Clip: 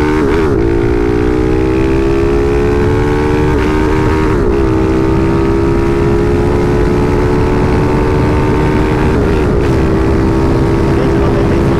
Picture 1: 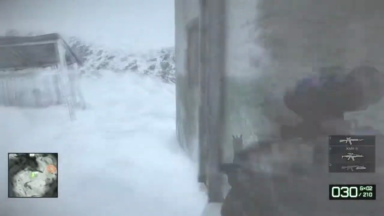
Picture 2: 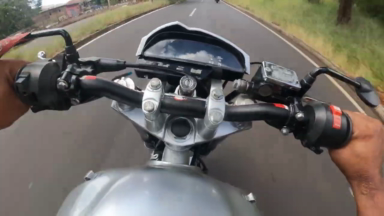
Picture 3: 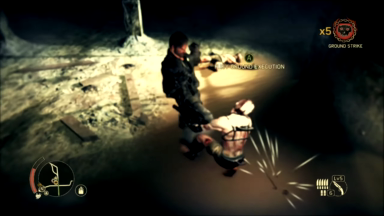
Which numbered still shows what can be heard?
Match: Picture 2